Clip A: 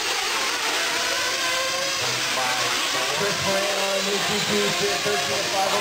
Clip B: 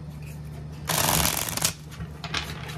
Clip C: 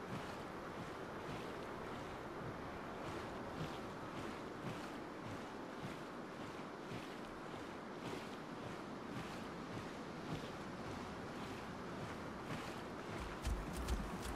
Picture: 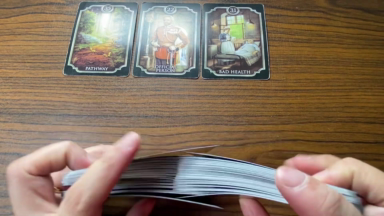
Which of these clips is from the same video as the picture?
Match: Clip B